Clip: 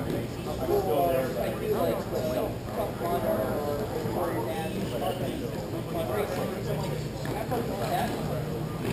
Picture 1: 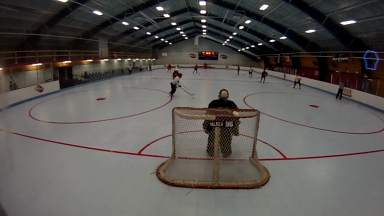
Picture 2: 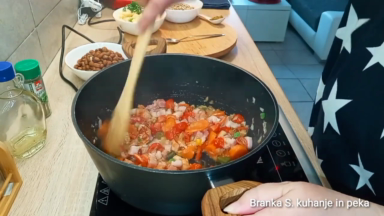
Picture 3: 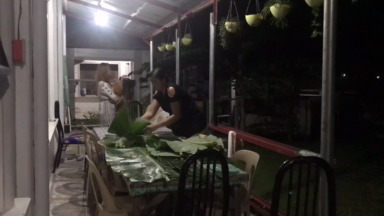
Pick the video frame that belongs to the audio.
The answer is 1